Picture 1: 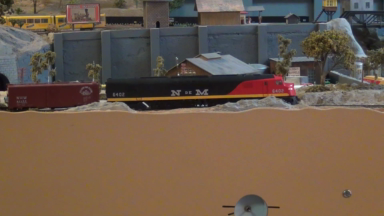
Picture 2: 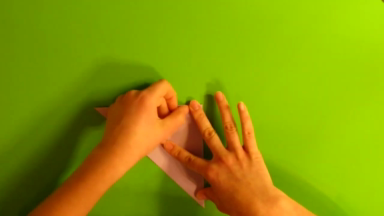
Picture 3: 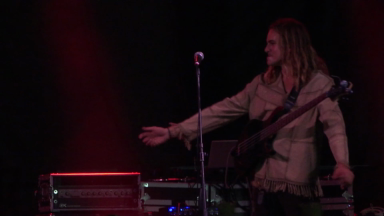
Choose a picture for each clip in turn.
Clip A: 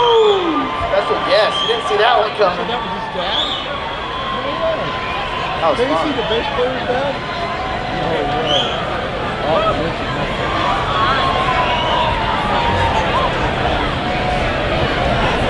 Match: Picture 3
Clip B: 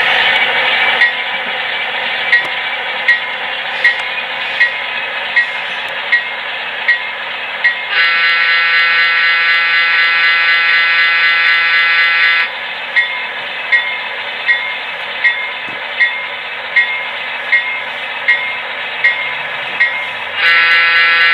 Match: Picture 1